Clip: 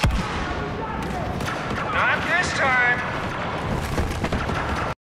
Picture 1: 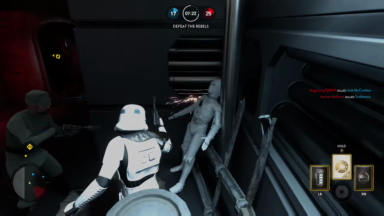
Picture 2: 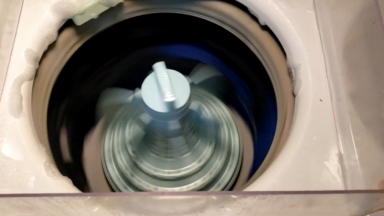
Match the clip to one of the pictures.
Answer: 1